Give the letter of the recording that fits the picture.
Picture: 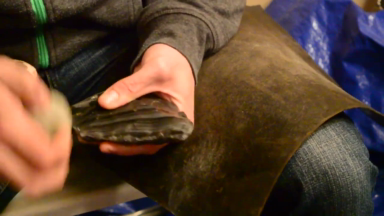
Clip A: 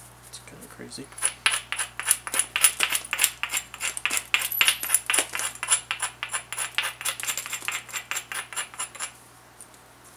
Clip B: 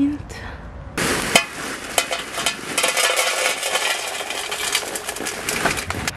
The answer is A